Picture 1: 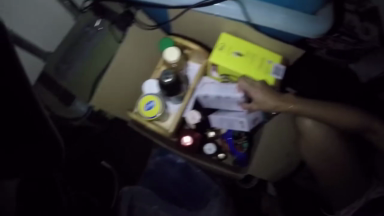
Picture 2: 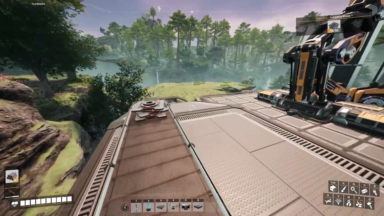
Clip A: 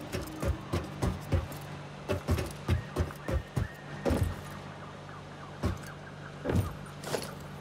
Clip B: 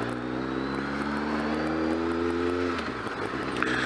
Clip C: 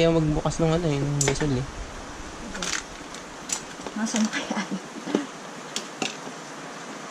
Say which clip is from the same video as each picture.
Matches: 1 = C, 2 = A